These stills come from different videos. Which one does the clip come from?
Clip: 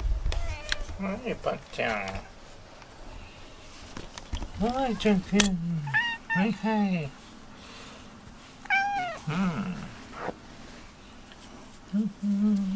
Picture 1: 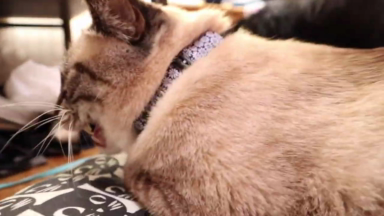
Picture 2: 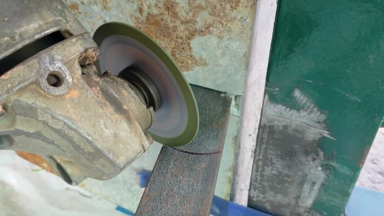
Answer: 1